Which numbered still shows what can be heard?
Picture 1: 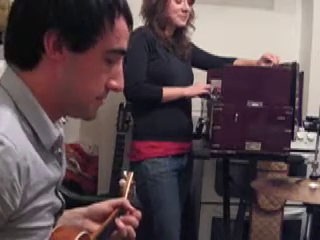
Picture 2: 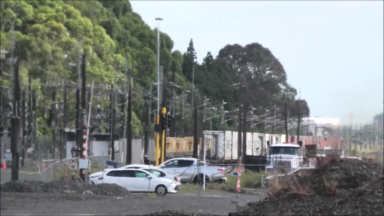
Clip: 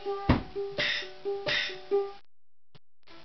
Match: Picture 1